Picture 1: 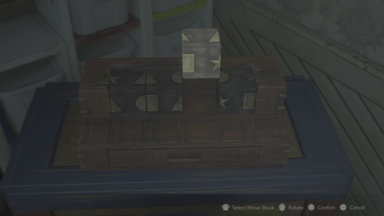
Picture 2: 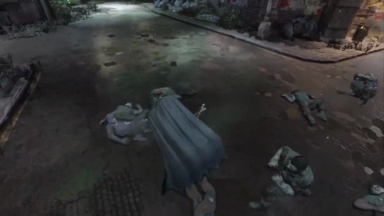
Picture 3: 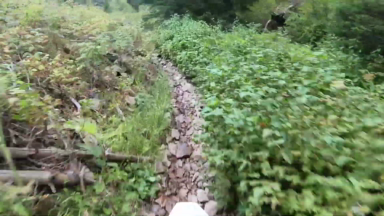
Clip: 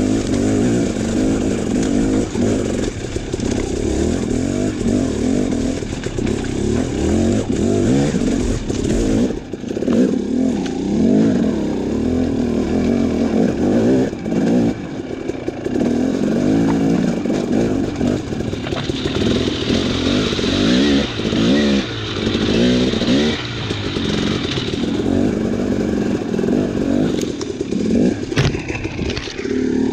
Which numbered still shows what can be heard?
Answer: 3